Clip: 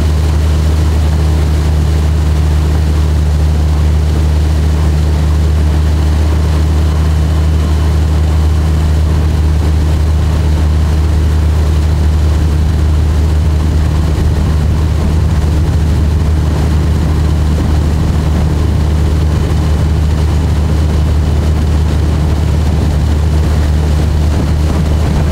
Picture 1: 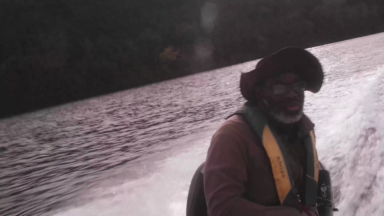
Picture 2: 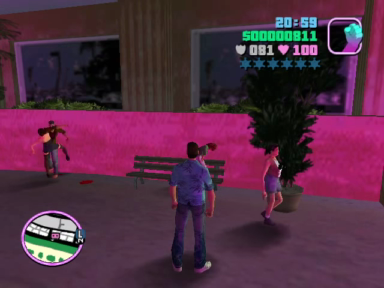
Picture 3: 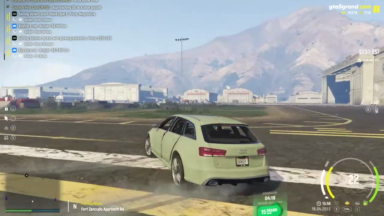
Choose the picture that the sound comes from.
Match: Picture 1